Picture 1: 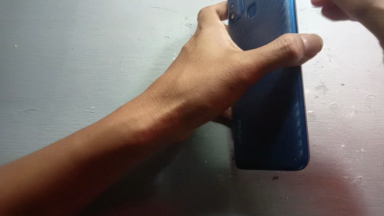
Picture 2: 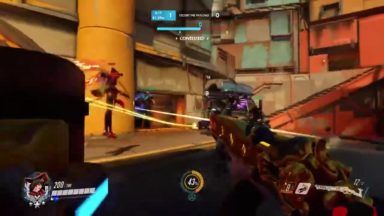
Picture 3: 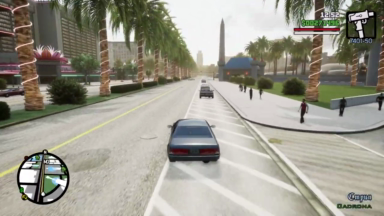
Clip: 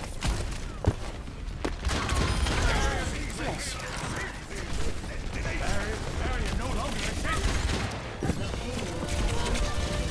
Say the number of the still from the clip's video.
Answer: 2